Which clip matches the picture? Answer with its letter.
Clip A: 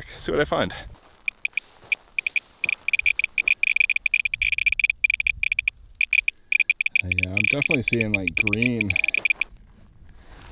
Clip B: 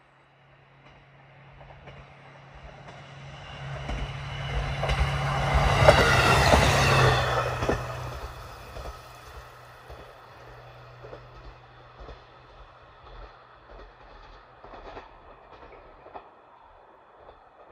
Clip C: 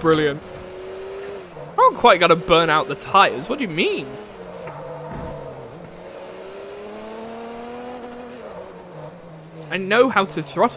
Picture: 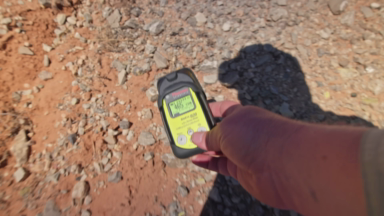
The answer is A